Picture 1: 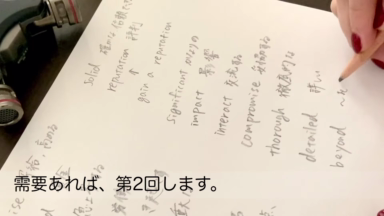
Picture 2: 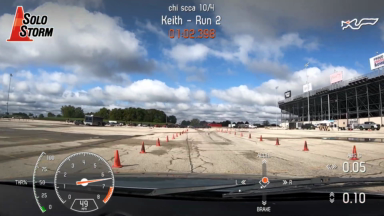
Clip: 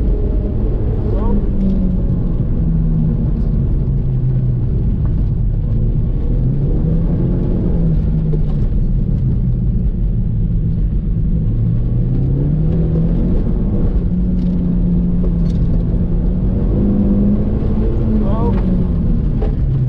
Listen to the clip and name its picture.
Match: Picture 2